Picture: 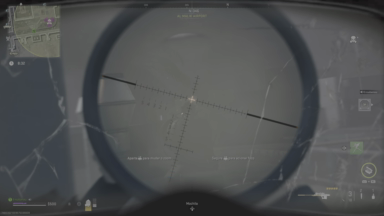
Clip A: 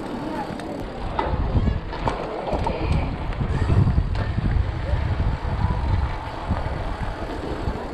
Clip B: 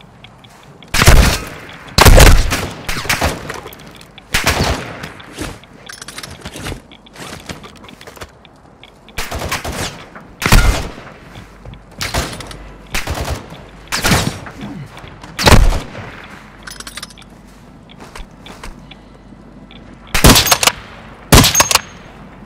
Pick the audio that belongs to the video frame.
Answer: B